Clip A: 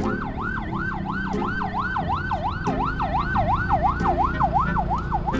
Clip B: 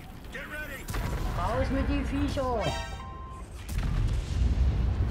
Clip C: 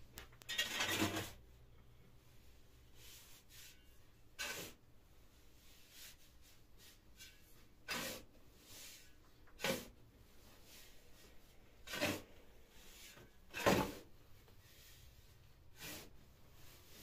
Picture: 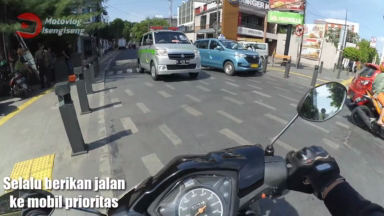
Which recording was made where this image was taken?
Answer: A